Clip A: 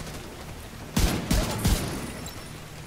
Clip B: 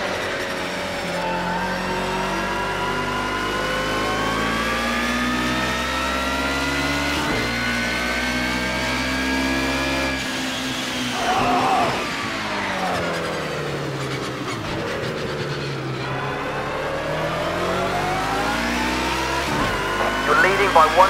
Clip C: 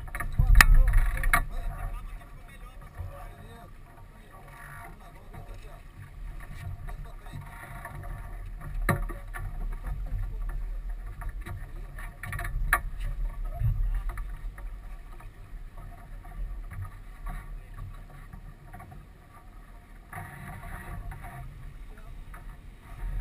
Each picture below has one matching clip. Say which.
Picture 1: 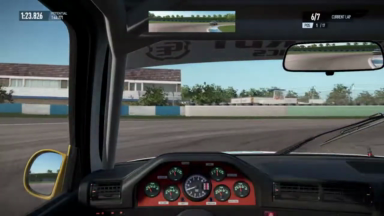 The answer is B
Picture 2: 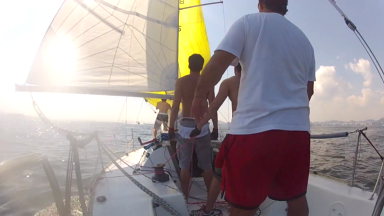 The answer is C